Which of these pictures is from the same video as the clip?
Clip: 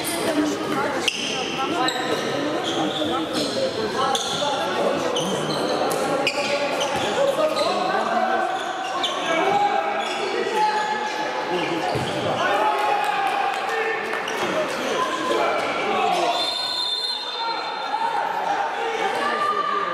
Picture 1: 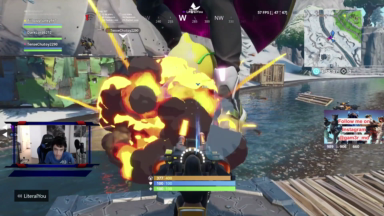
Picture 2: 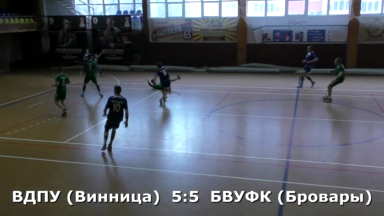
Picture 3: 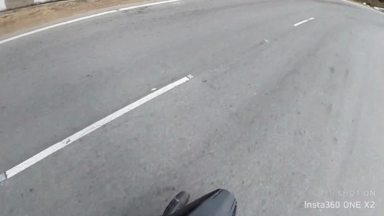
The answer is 2